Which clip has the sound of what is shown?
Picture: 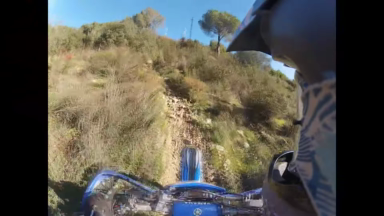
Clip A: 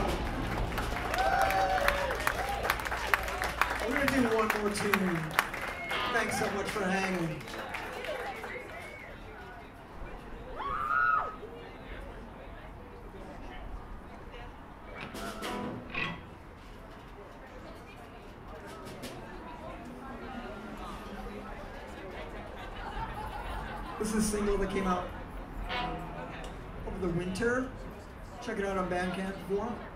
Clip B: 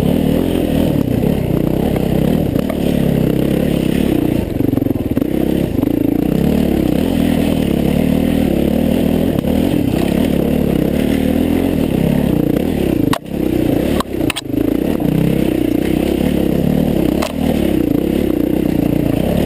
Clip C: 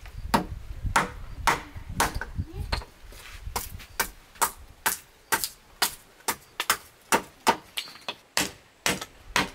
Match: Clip B